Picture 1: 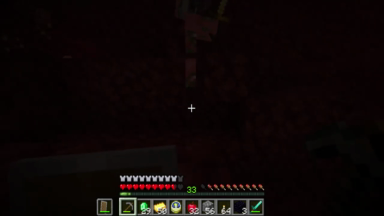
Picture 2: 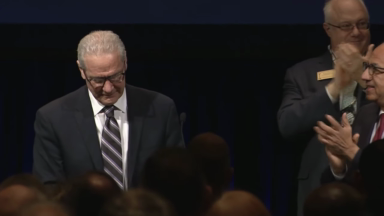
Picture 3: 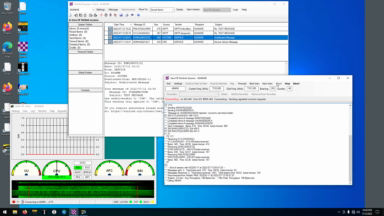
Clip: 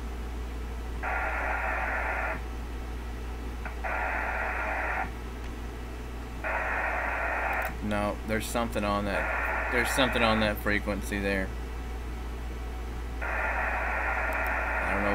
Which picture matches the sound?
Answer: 3